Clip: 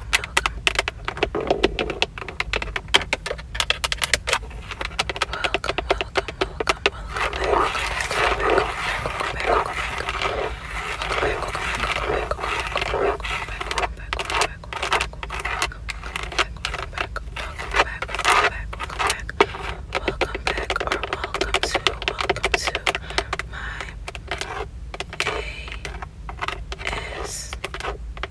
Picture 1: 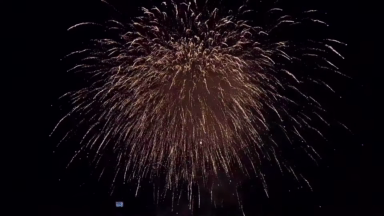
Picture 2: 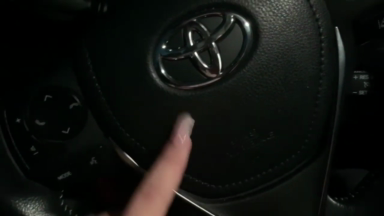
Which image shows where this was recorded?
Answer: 2